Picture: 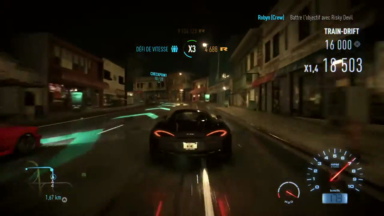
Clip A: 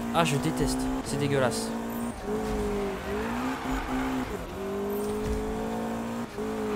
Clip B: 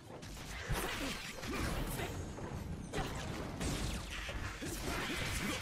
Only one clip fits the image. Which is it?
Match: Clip A